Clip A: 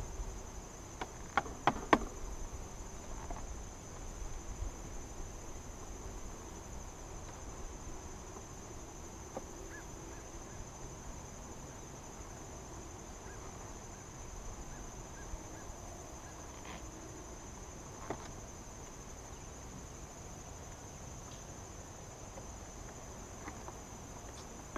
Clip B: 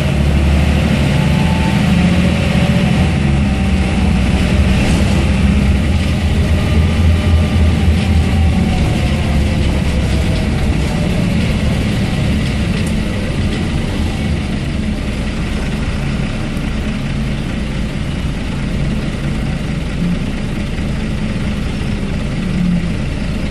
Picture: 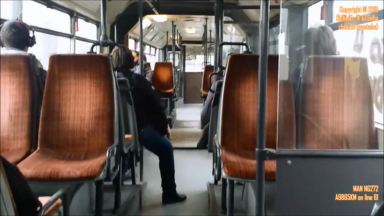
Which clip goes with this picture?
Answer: B